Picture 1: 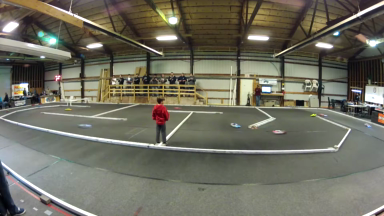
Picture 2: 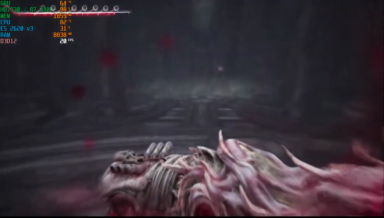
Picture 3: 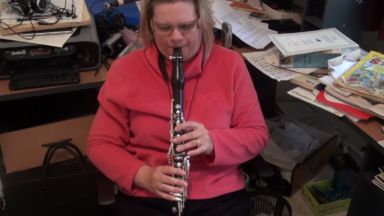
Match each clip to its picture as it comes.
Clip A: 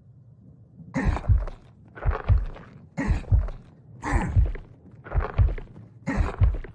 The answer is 2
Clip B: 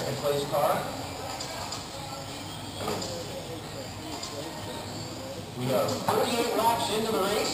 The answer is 1